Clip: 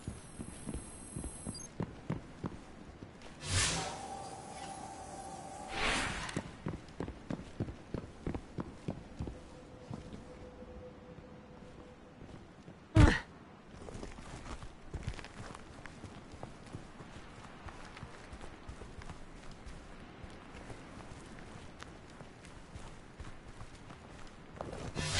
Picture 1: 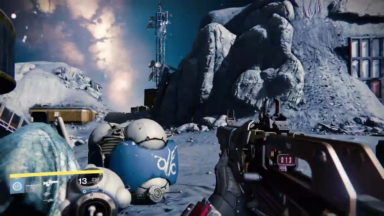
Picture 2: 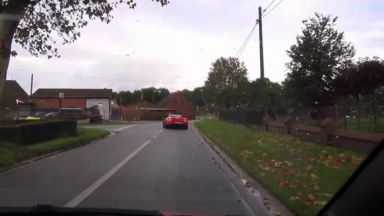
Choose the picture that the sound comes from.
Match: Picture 1